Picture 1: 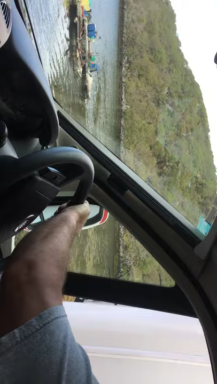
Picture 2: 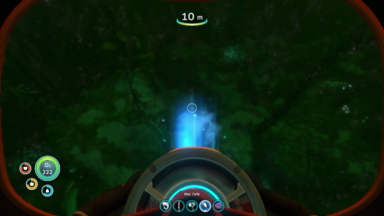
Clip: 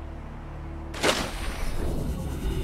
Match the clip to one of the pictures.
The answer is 2